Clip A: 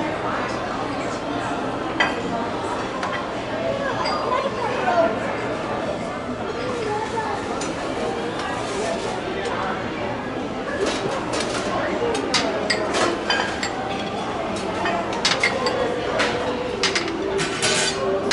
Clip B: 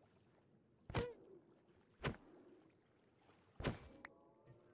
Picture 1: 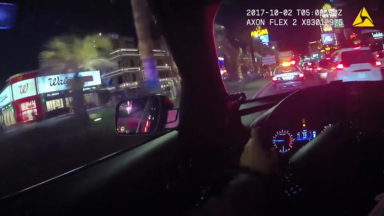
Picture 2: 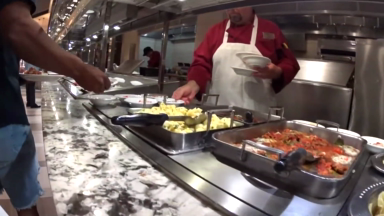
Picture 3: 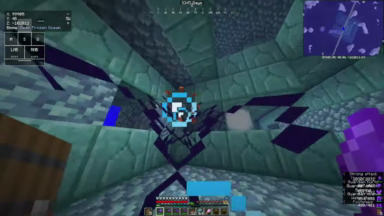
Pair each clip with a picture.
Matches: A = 2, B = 3